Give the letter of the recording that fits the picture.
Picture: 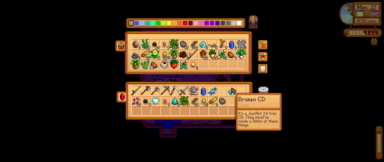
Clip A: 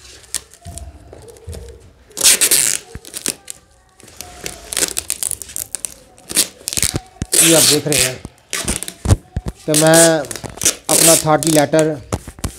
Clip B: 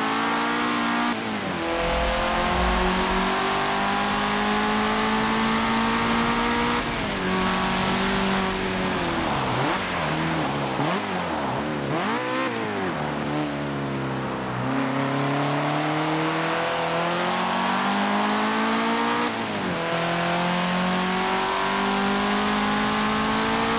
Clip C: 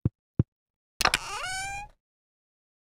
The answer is C